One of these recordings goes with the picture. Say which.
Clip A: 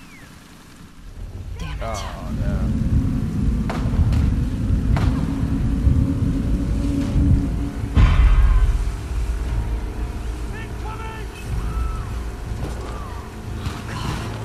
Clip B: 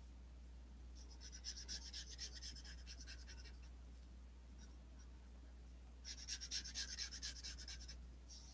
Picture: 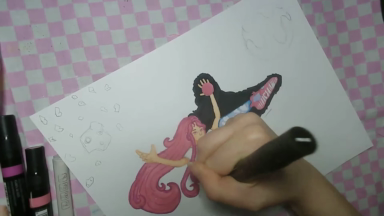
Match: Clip B